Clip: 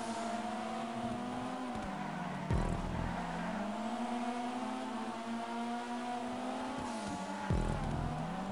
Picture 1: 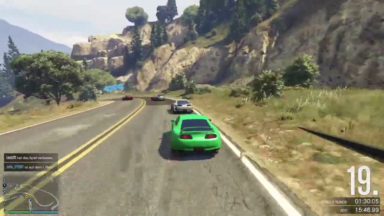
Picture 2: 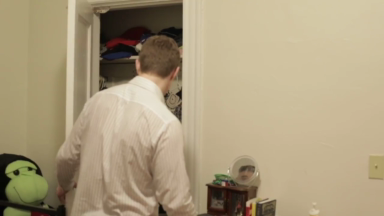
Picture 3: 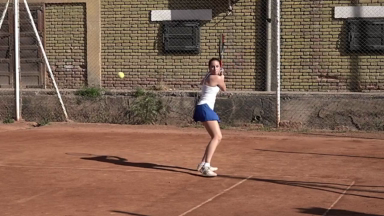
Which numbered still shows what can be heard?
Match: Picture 1